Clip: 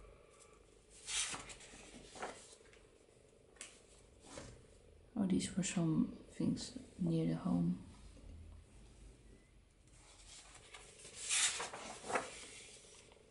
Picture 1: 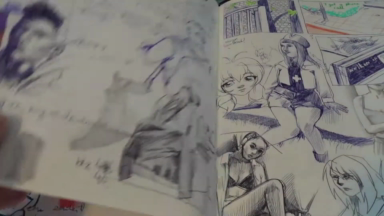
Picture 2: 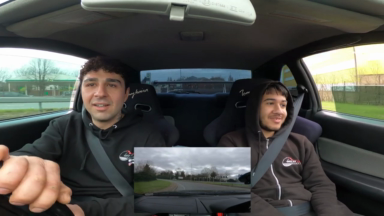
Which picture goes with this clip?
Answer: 1